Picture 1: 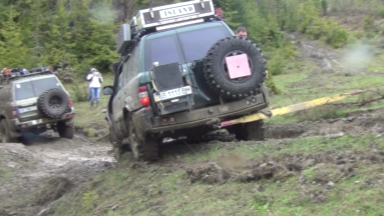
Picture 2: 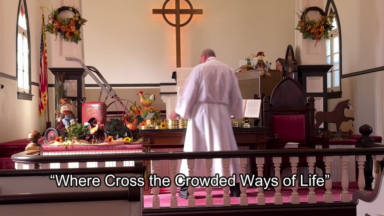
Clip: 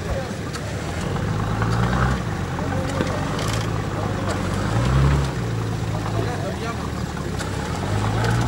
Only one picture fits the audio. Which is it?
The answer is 1